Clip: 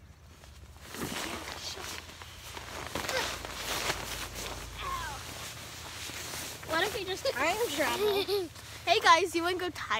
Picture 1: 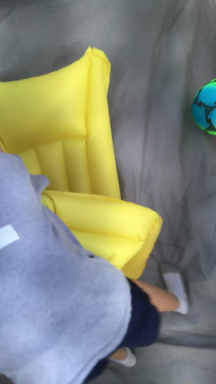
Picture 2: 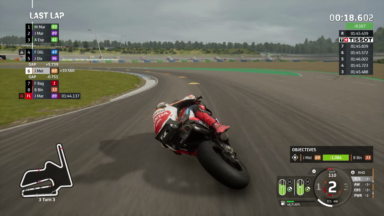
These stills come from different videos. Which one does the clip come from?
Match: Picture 1